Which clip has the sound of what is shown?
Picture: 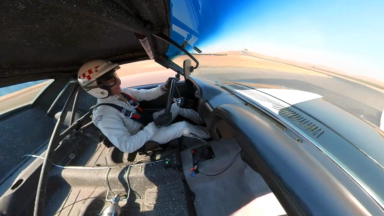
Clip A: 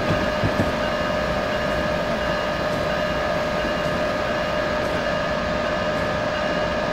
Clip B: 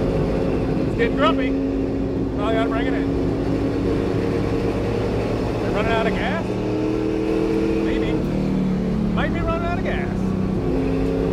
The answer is B